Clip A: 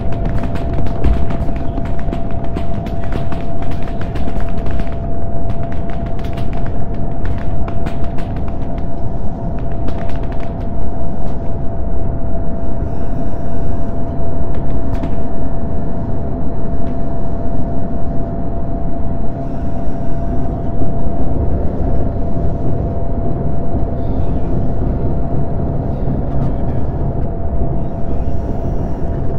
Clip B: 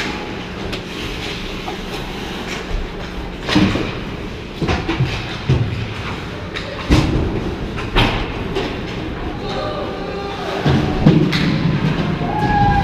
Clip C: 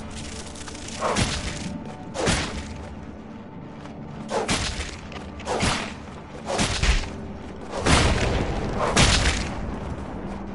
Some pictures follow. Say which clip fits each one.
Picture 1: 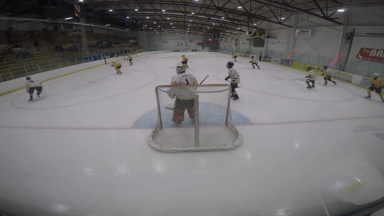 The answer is B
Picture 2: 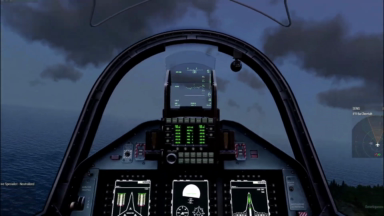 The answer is A